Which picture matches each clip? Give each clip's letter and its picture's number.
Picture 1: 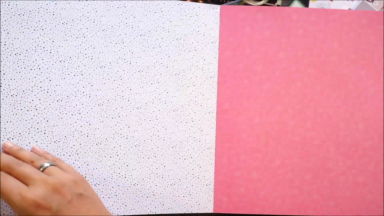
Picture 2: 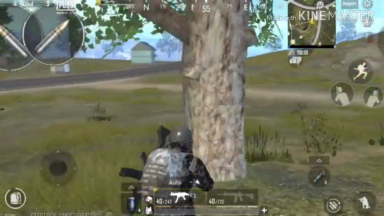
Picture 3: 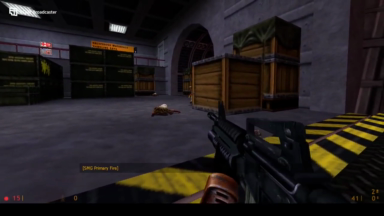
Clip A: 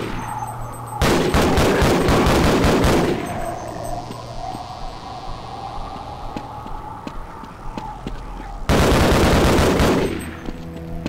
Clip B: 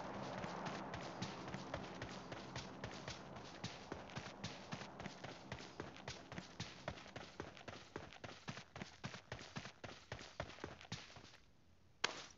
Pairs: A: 3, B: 2